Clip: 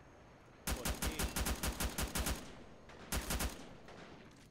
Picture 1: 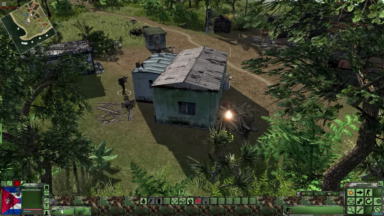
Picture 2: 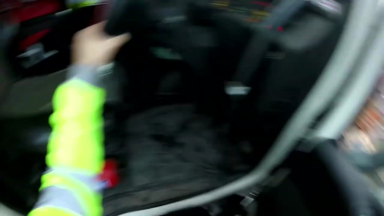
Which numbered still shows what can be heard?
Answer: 1